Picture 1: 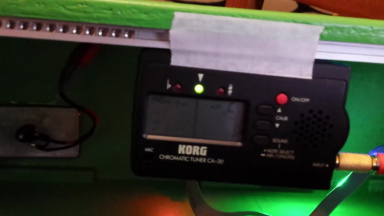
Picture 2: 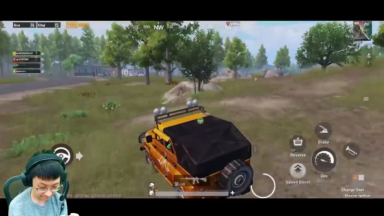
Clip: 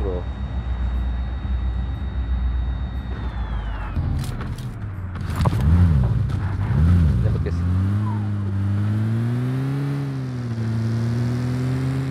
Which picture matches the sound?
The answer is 2